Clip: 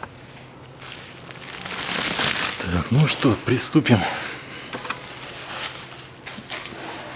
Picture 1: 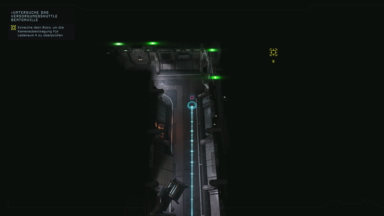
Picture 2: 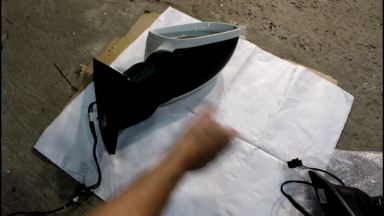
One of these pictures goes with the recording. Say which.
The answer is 2